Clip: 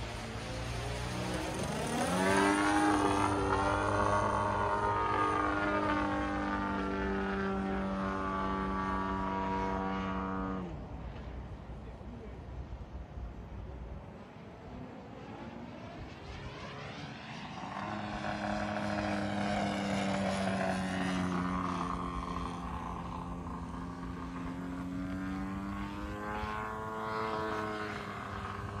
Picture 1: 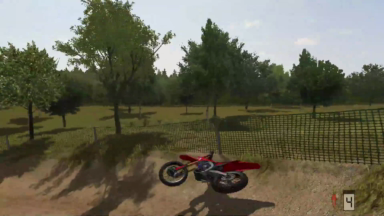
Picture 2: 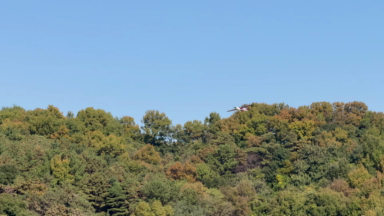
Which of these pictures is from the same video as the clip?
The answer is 2